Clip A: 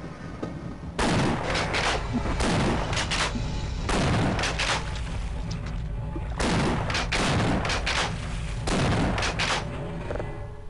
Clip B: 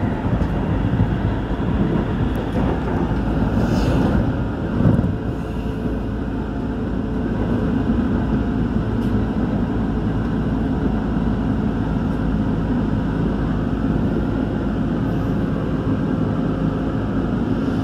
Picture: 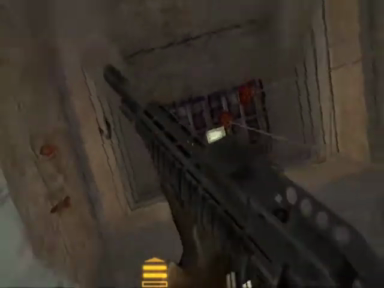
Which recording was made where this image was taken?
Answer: A